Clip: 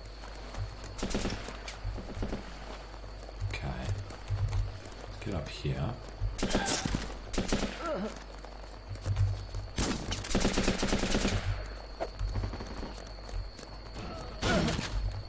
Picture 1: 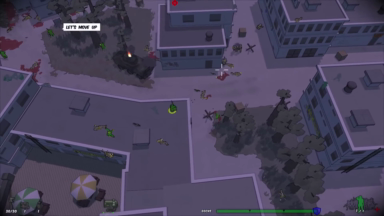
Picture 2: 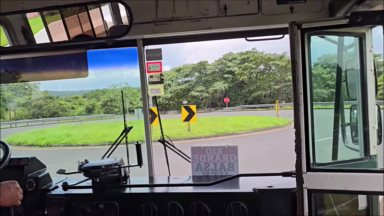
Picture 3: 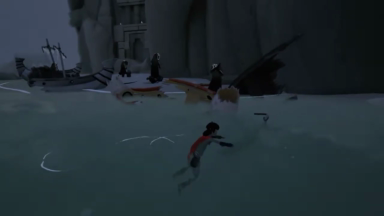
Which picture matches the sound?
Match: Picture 1